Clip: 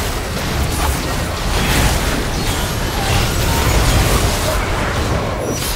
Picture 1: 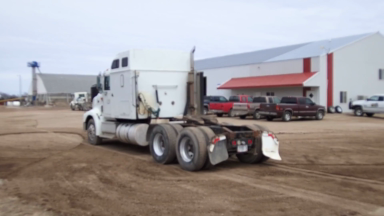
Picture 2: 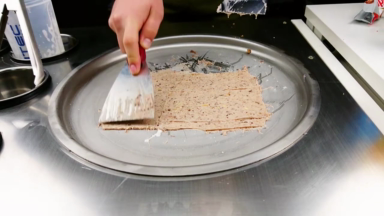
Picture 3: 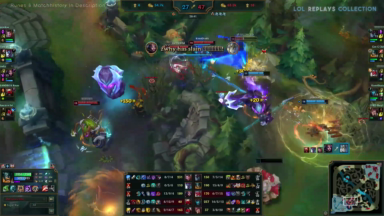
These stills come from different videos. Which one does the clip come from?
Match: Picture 3